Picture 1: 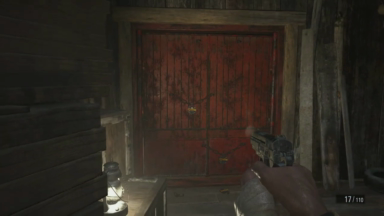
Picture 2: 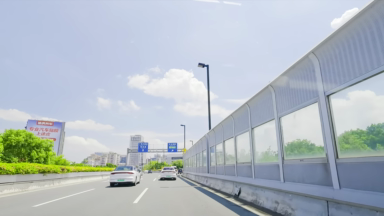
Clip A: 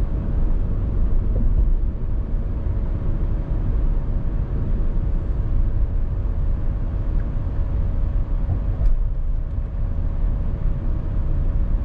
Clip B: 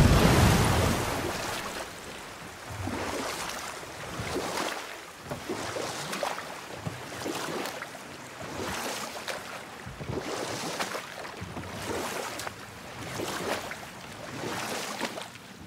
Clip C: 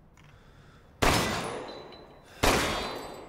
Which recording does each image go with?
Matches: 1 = C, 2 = A